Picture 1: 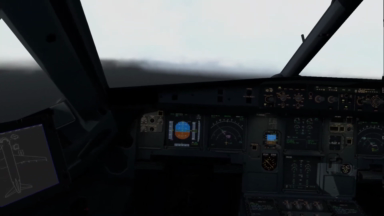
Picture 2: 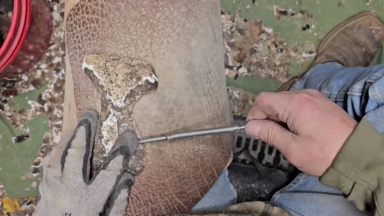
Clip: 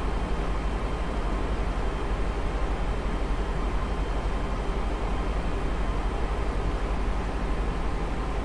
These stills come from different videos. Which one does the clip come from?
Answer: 1